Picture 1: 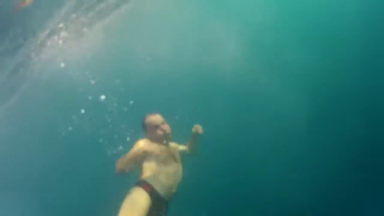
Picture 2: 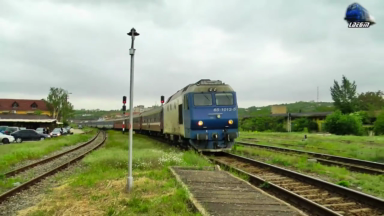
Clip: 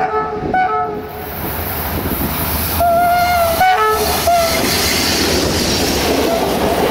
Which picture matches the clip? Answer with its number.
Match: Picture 2